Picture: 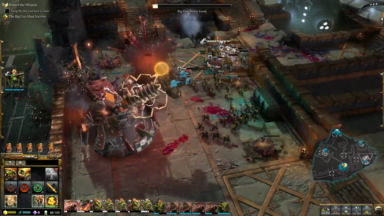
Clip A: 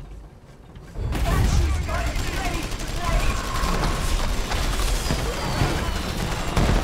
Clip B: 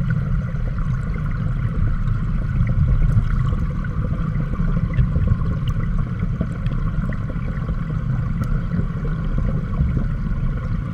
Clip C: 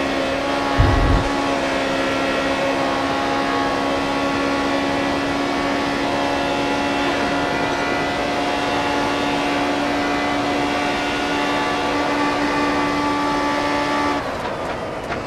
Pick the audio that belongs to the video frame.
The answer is A